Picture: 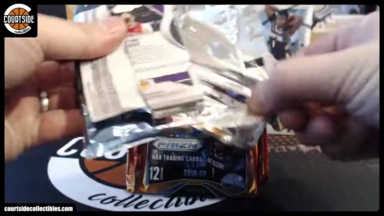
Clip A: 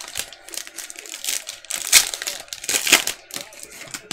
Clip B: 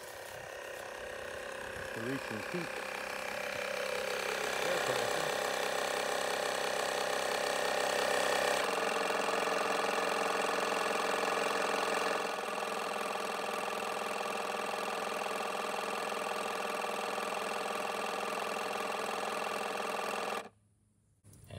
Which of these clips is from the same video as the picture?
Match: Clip A